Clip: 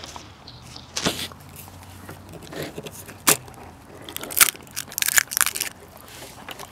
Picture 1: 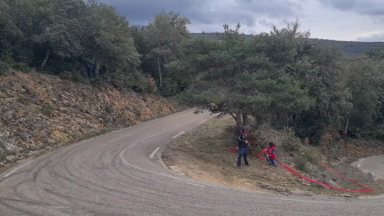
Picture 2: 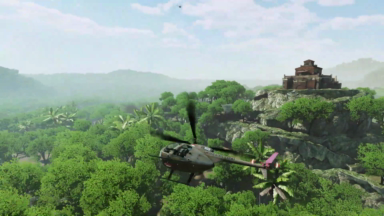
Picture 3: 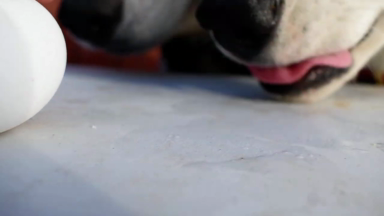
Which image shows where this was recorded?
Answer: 3